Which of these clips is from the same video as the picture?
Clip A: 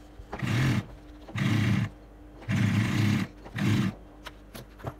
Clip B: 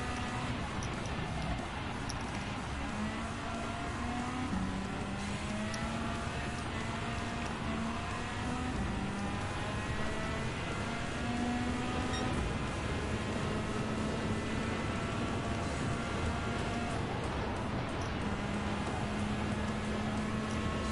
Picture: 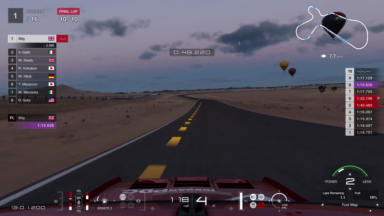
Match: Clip B